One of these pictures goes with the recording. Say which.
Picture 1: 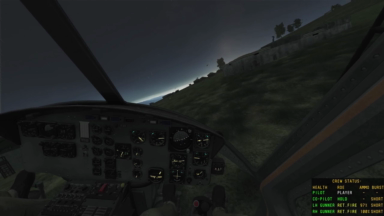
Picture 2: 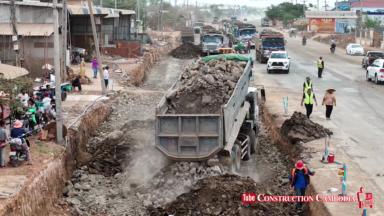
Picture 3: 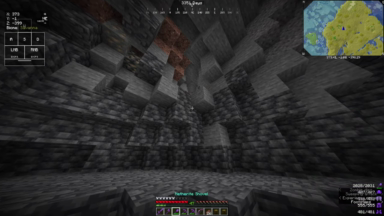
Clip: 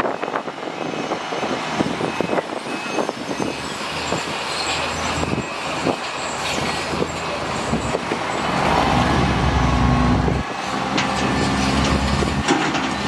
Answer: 2